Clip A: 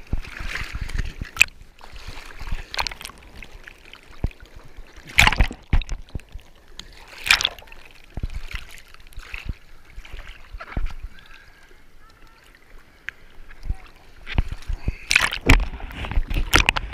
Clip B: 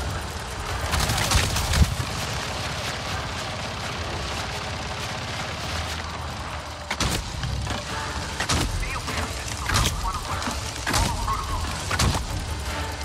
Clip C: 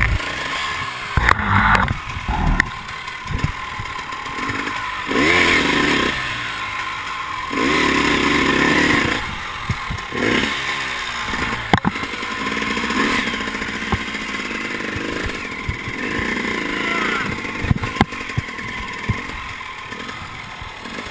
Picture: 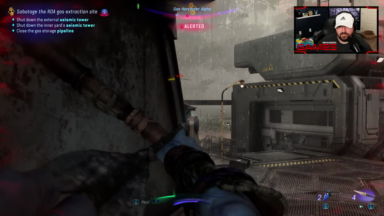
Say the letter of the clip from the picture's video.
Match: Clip B